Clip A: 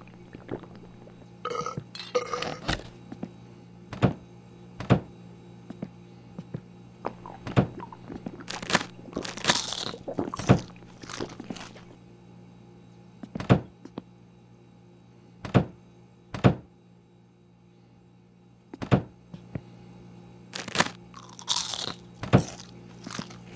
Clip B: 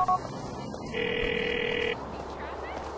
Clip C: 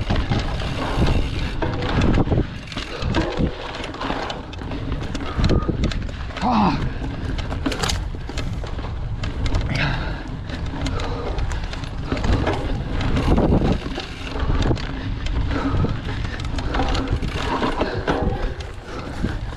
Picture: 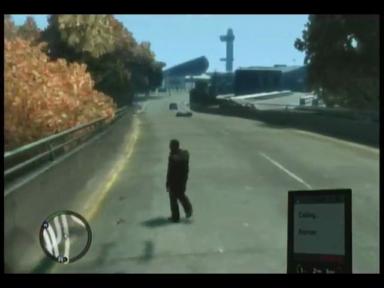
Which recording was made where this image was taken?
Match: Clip B